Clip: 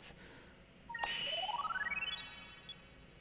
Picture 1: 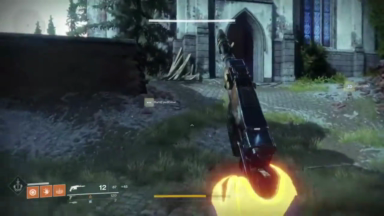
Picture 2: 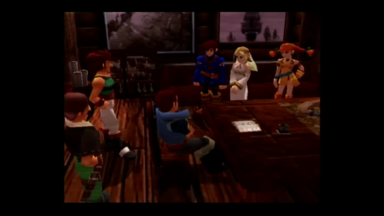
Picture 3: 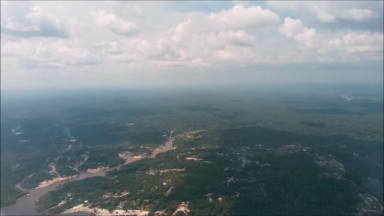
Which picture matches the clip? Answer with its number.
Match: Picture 2